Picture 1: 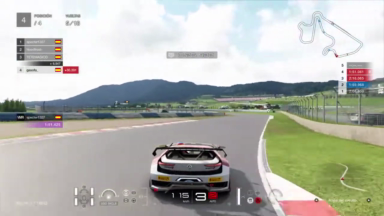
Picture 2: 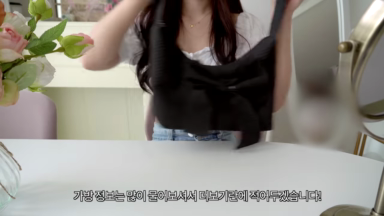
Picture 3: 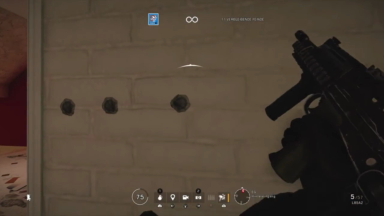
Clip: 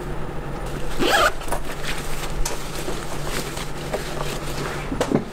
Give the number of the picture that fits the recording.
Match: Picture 2